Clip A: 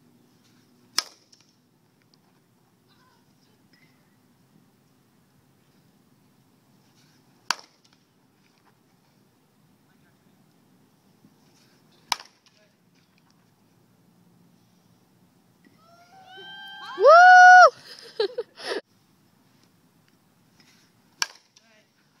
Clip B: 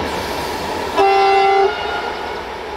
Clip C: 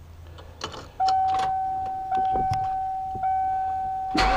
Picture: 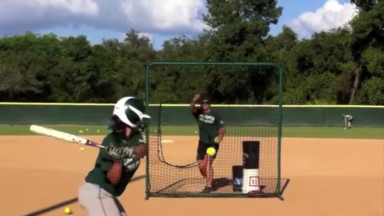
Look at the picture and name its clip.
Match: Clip A